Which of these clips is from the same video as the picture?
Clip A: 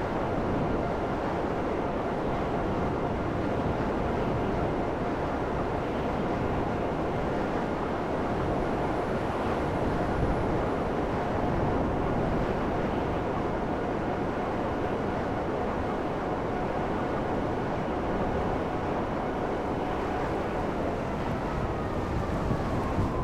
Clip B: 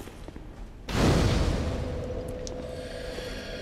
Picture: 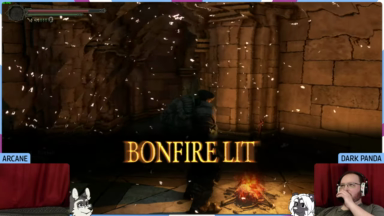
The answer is B